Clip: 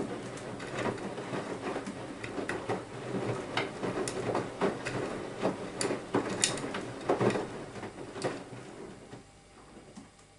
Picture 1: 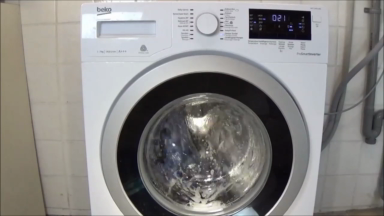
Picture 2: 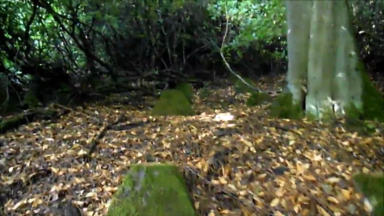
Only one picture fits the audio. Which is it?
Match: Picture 1